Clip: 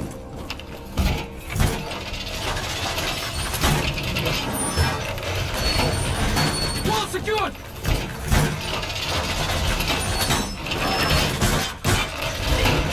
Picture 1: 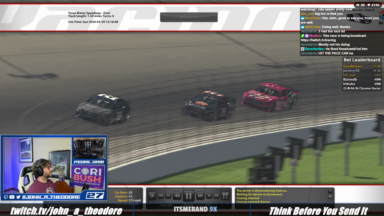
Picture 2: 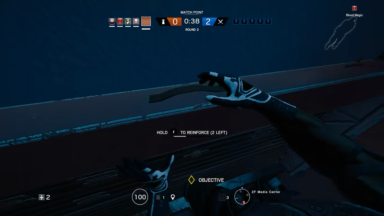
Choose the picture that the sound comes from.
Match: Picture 2